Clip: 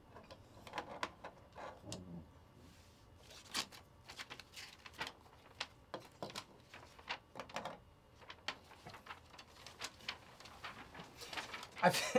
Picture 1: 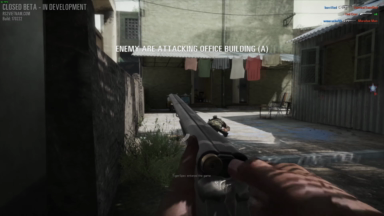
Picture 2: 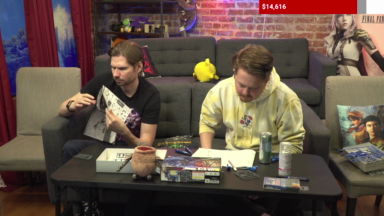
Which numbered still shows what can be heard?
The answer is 2